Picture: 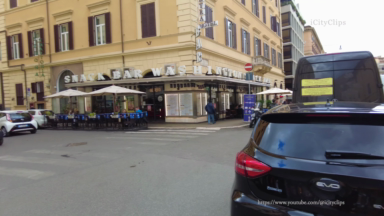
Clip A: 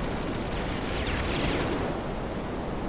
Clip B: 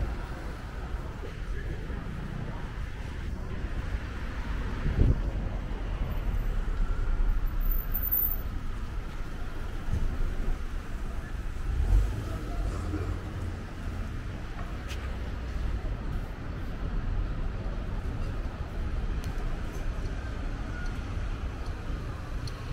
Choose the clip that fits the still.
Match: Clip B